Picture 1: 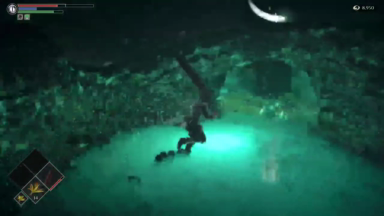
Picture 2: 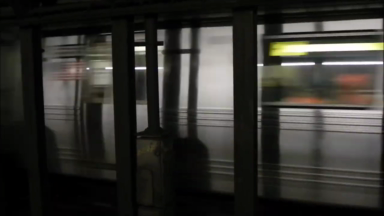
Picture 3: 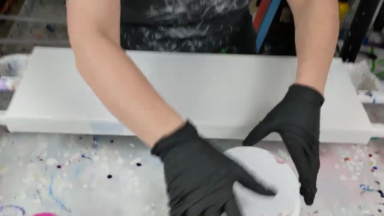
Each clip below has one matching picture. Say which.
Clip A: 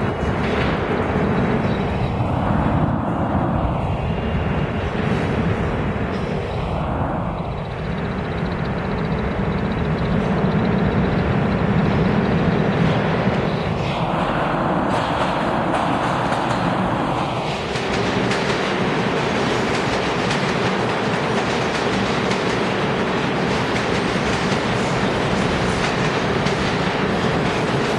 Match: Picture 2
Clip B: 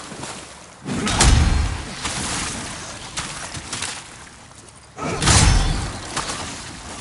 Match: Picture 1